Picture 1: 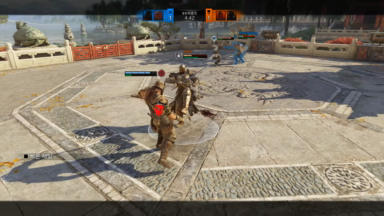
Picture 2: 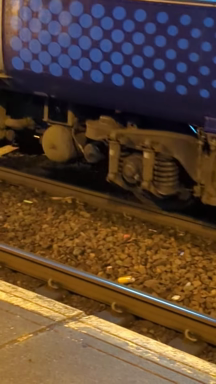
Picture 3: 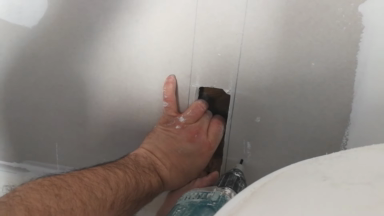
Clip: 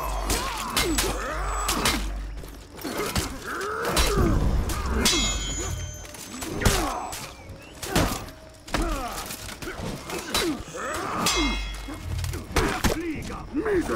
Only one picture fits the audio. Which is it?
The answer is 1